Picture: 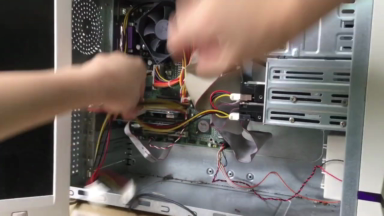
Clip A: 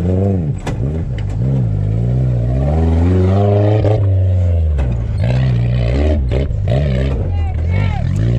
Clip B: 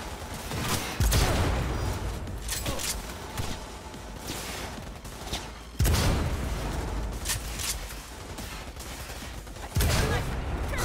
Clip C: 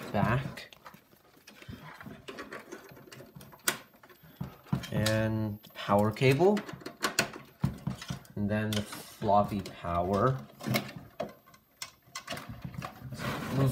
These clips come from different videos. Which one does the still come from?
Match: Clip C